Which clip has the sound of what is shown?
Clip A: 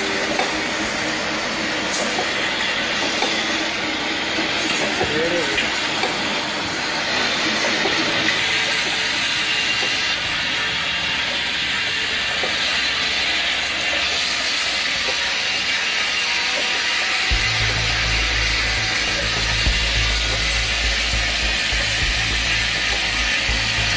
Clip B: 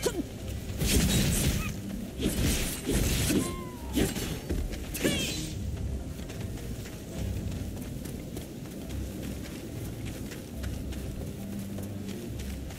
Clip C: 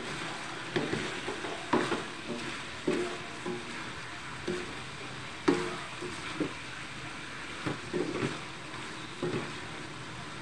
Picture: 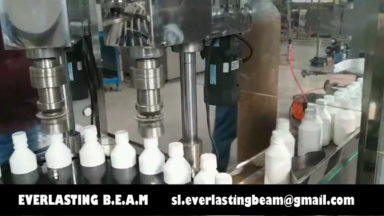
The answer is A